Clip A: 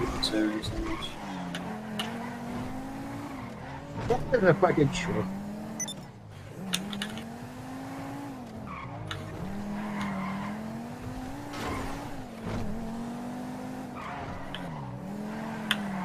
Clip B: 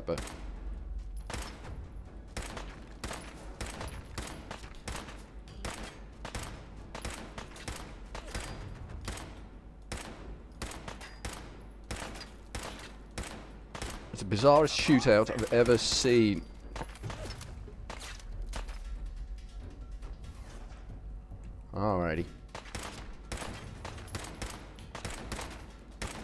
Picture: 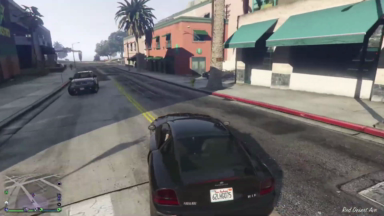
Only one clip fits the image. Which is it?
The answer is A